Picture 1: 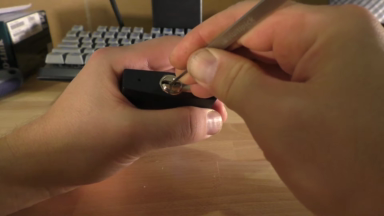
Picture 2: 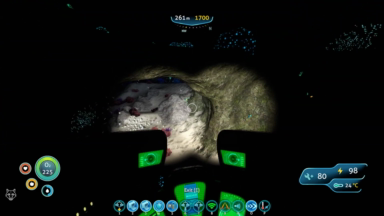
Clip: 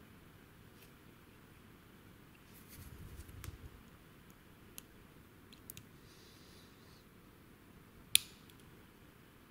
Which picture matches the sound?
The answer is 1